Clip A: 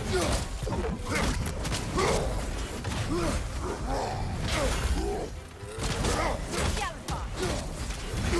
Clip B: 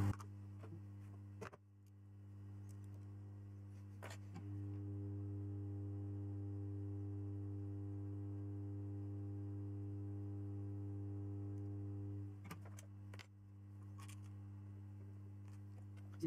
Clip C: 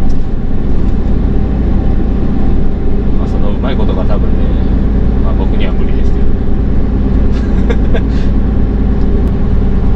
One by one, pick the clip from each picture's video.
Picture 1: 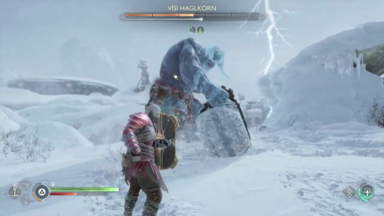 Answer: A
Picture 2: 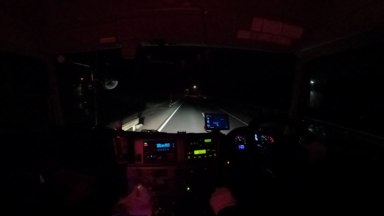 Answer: C